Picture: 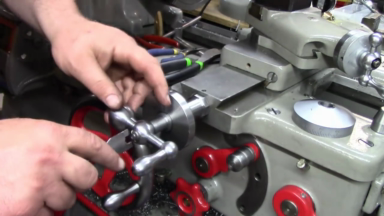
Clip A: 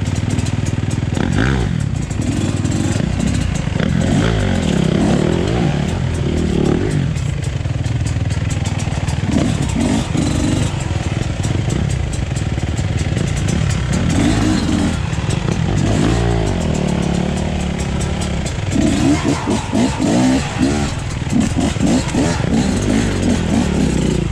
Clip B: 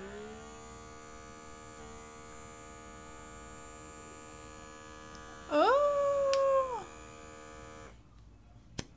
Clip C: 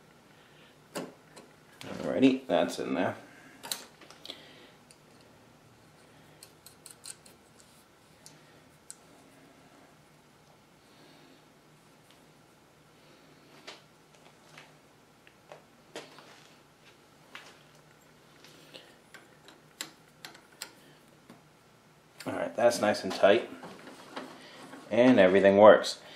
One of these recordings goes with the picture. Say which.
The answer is C